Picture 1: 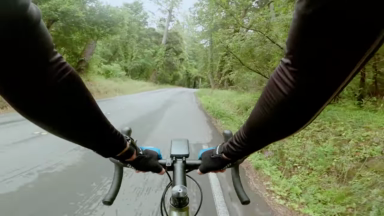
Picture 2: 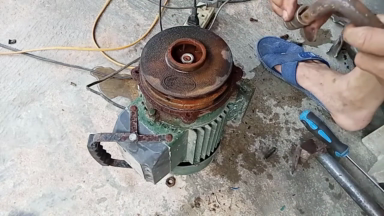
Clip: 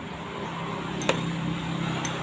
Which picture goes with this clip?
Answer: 2